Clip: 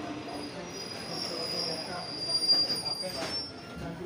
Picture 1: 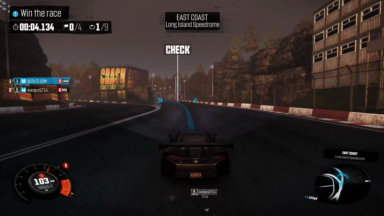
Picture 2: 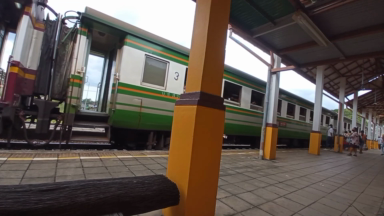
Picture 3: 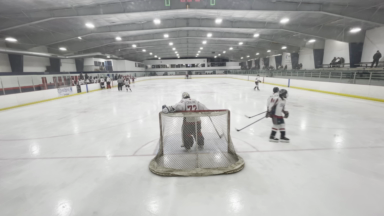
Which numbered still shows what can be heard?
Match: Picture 2